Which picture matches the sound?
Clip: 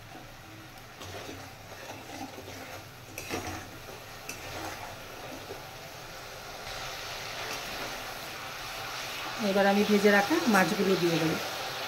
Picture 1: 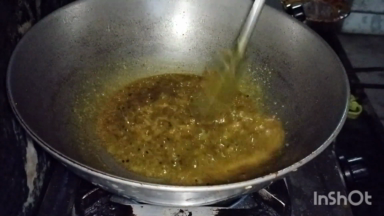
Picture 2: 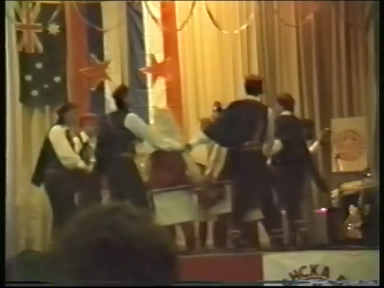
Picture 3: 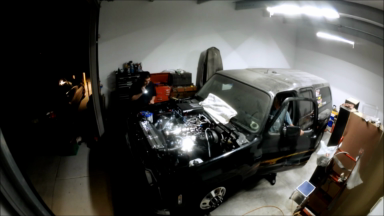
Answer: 1